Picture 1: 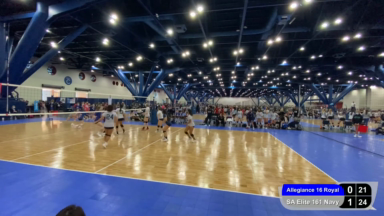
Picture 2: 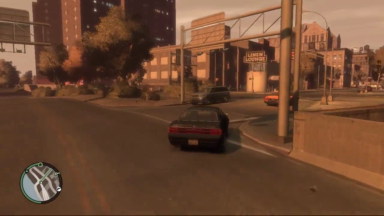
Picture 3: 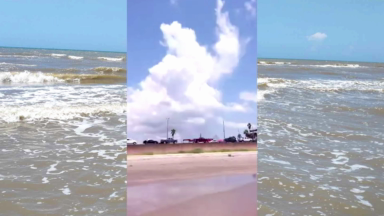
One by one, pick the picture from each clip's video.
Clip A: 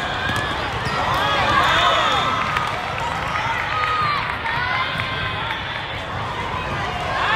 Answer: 1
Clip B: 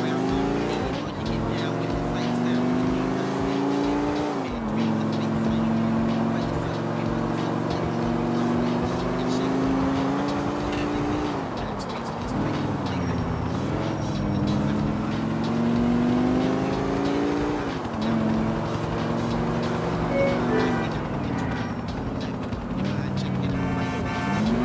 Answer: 2